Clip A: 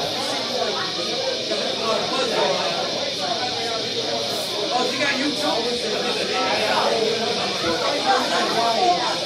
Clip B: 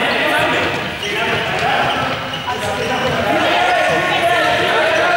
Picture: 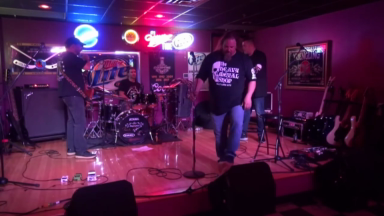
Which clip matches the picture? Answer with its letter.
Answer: A